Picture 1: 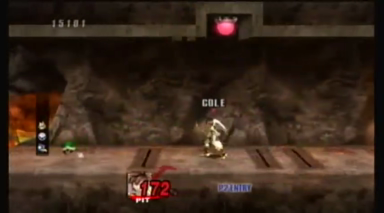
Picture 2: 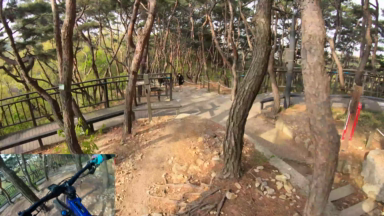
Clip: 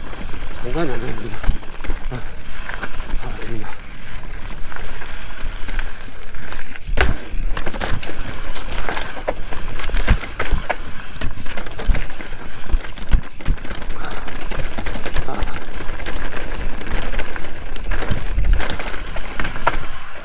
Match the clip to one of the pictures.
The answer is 2